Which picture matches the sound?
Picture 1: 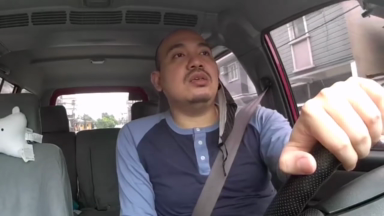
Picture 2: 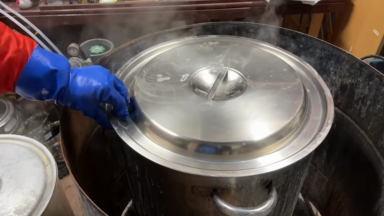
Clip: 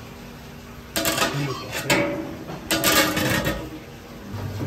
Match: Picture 2